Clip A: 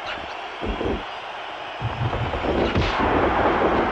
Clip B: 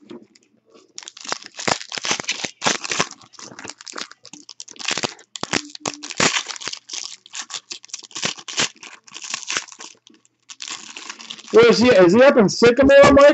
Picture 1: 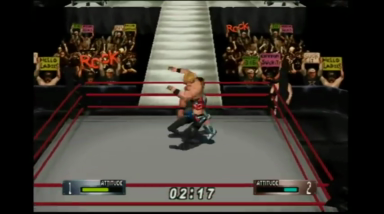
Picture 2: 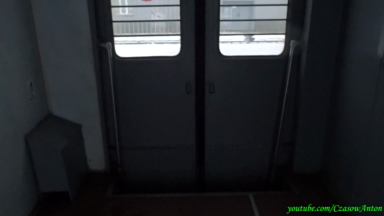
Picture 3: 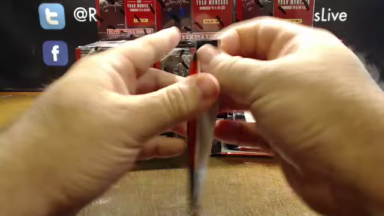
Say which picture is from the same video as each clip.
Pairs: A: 1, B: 3